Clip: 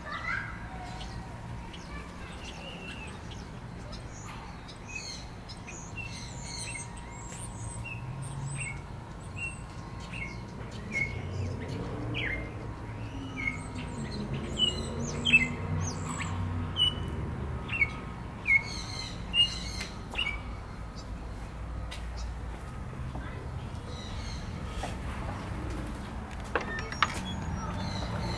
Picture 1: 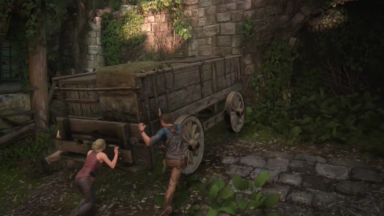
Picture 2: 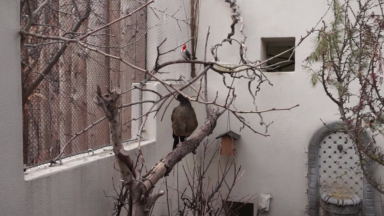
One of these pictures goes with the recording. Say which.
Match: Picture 2